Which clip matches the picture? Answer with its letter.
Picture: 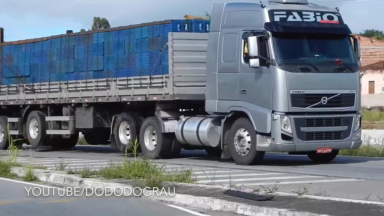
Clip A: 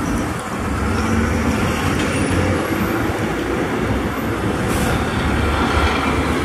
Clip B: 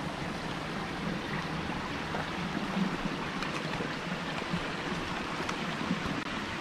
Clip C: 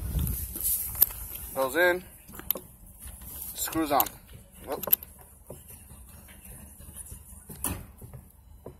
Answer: A